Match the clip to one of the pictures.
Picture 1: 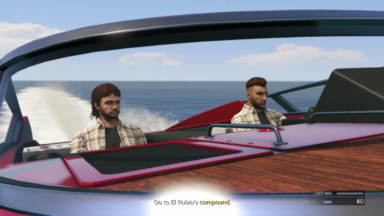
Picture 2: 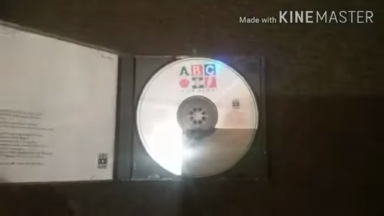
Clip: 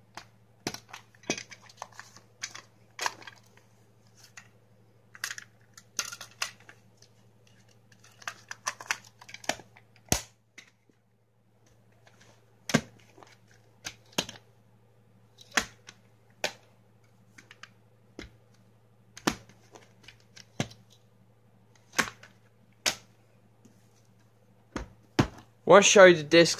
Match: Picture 2